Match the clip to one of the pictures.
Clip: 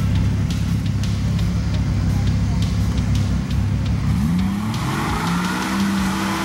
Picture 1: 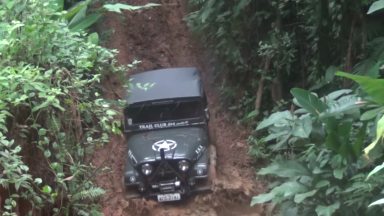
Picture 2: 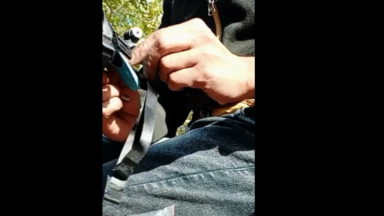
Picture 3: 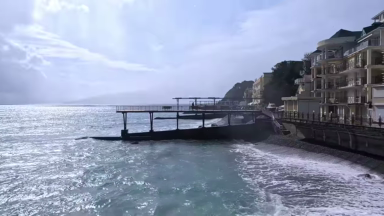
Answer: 1